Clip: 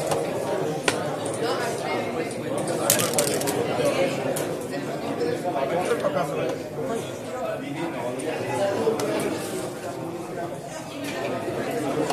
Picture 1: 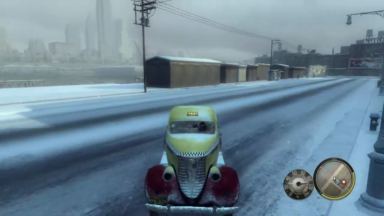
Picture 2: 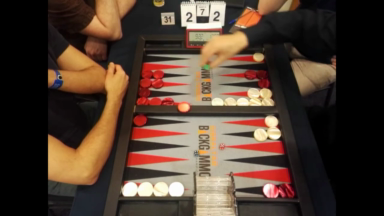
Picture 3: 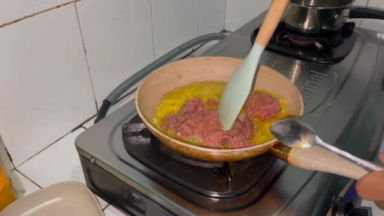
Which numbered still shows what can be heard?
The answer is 2